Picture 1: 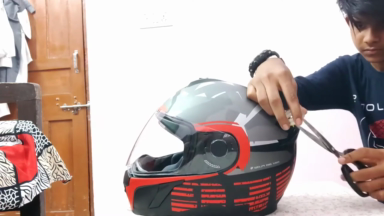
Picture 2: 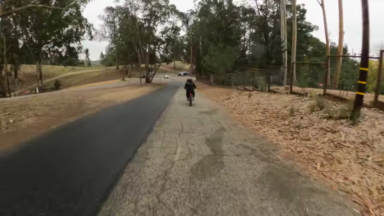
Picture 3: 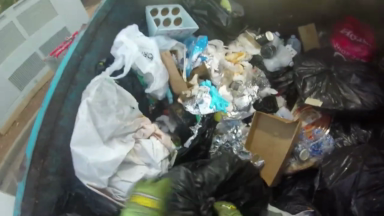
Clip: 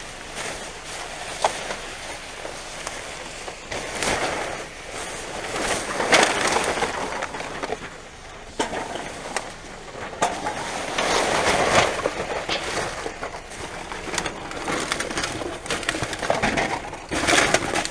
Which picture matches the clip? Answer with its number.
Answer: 3